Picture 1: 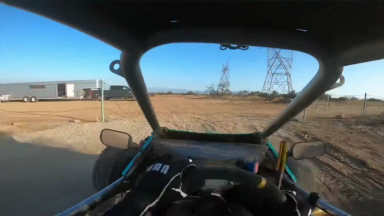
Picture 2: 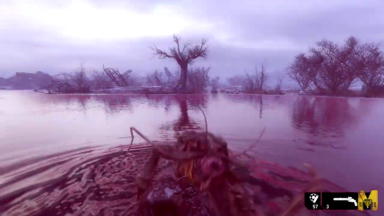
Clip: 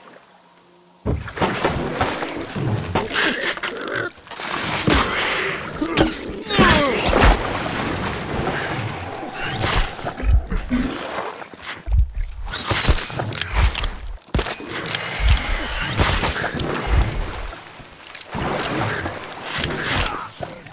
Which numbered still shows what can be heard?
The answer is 2